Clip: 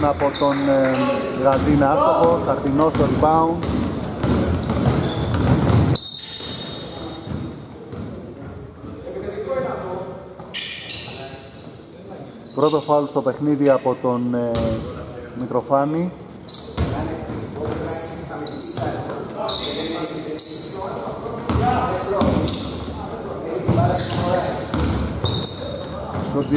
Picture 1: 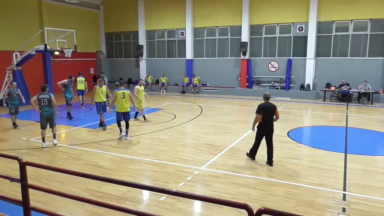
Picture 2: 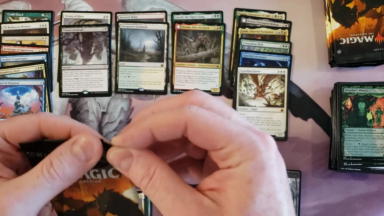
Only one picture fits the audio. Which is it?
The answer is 1